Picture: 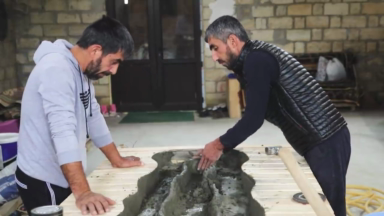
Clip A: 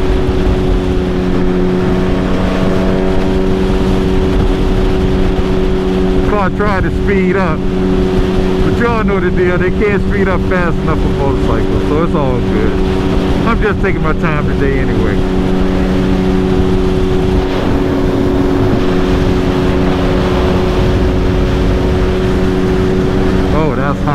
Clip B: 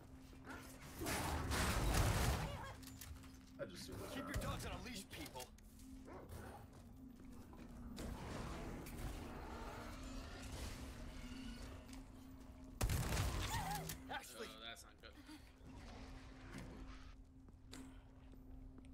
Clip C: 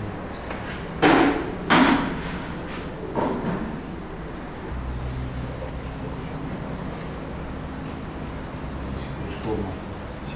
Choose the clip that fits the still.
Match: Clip C